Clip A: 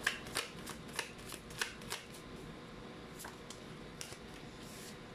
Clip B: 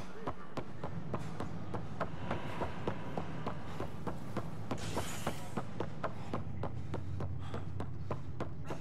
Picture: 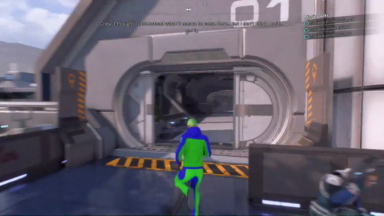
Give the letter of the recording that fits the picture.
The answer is B